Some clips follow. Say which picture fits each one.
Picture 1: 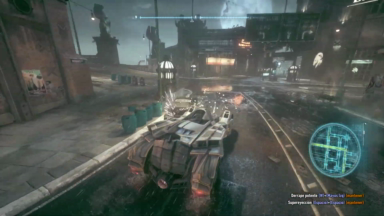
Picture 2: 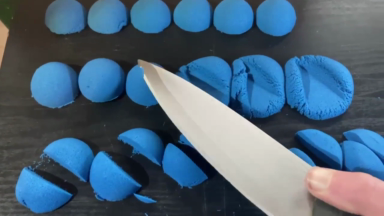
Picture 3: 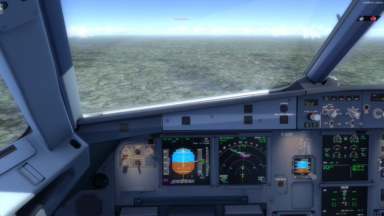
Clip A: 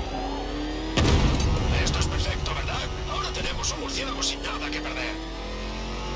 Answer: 1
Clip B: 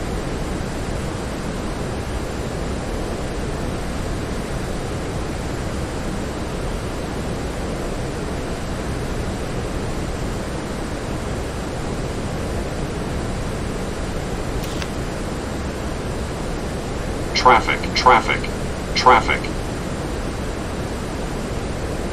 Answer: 3